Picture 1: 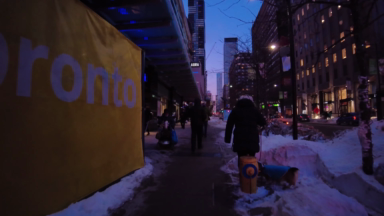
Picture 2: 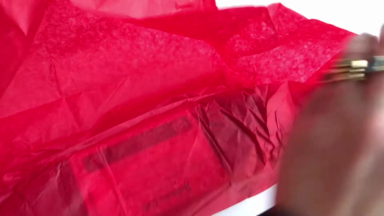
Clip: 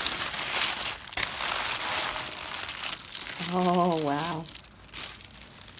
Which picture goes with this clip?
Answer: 2